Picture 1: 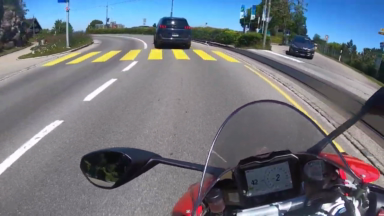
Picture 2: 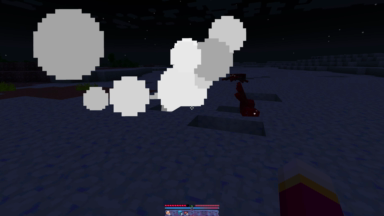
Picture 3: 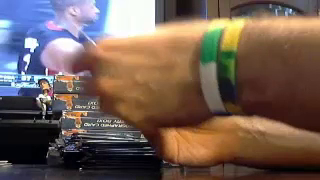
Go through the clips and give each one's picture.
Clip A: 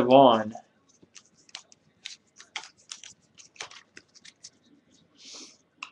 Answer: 3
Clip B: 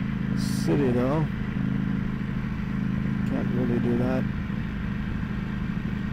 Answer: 1